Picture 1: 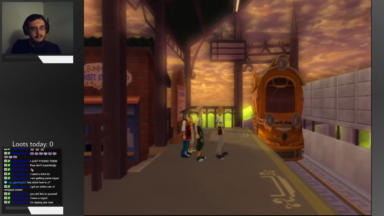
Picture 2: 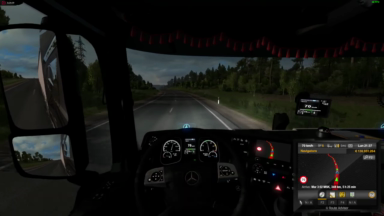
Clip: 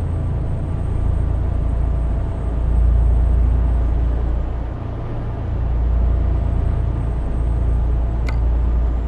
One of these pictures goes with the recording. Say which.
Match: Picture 2